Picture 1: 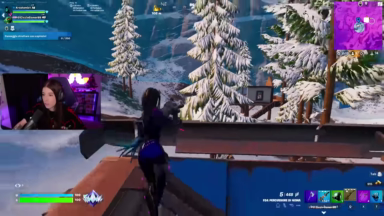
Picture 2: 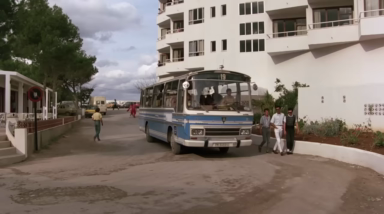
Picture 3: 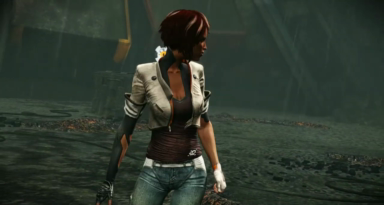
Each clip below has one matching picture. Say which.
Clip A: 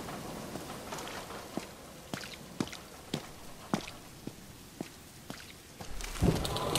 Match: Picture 3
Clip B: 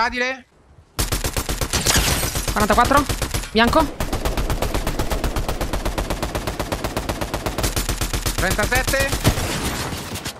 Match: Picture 1